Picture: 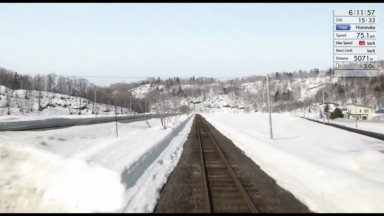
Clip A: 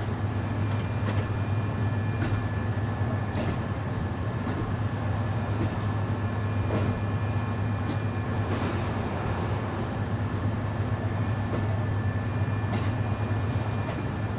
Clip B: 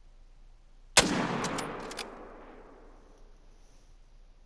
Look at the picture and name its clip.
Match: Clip A